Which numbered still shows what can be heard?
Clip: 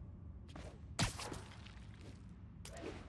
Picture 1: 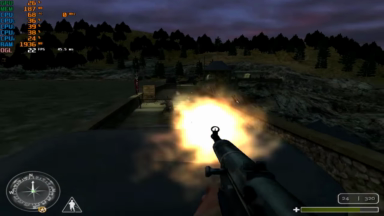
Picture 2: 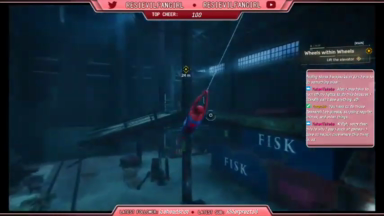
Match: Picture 2